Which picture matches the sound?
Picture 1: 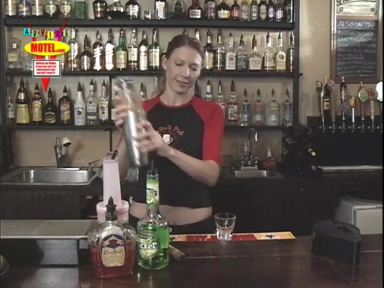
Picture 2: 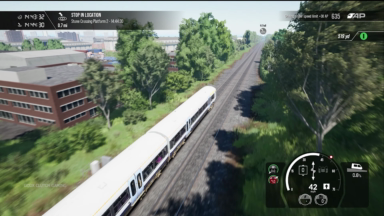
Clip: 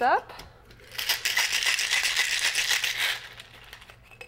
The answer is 1